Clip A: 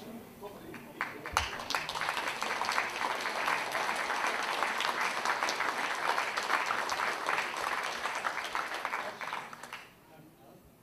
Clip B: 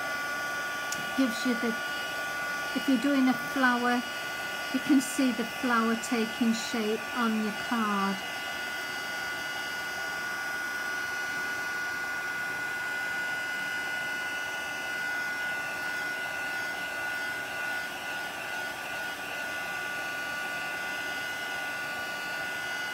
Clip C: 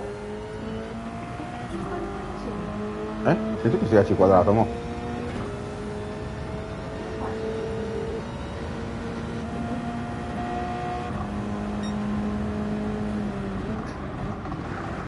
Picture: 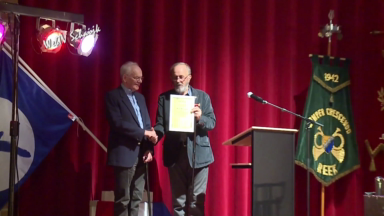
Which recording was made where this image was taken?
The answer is A